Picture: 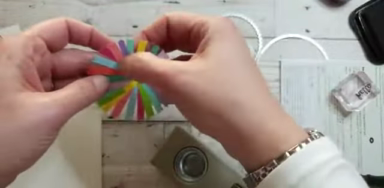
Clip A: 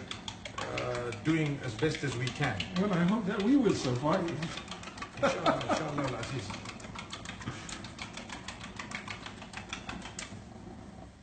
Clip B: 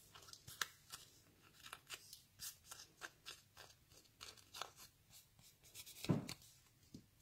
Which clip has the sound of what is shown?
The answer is B